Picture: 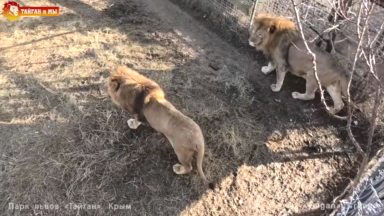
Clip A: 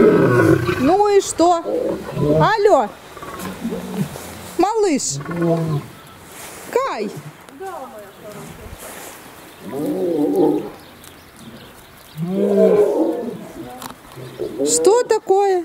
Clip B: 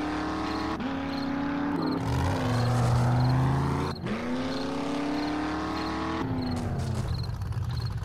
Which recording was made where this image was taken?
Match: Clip A